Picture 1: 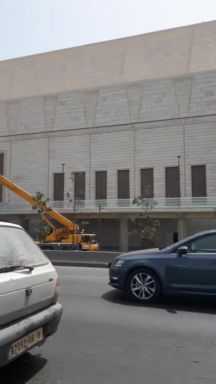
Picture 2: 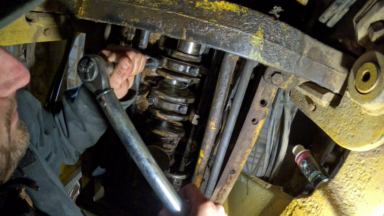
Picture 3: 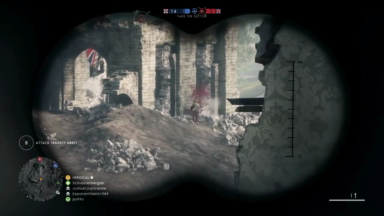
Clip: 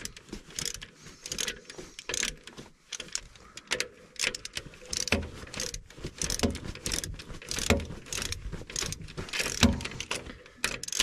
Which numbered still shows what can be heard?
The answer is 2